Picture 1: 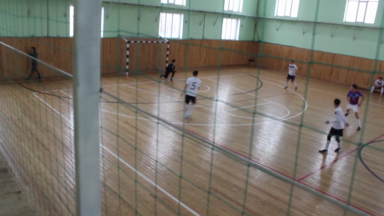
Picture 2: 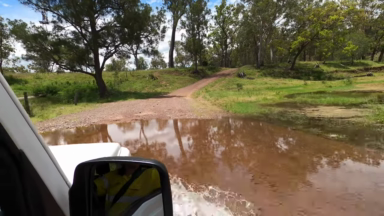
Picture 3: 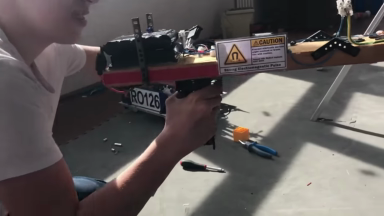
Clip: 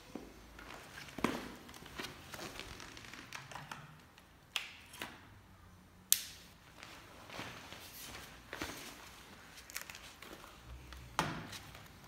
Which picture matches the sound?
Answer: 3